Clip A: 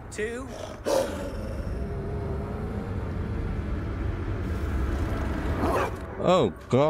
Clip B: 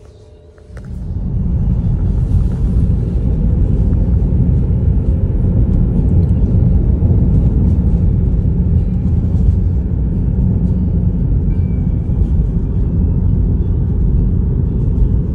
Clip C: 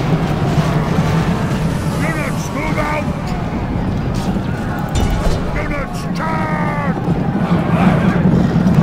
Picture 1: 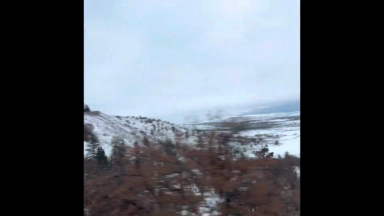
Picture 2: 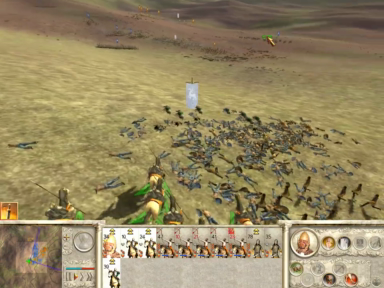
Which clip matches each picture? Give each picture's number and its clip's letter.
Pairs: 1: B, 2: C